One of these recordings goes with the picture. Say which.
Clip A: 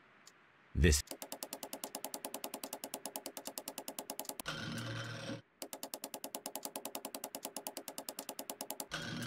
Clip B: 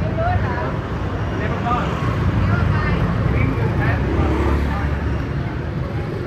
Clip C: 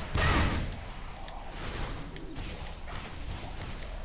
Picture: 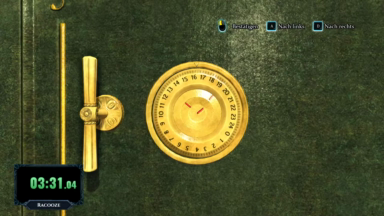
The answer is A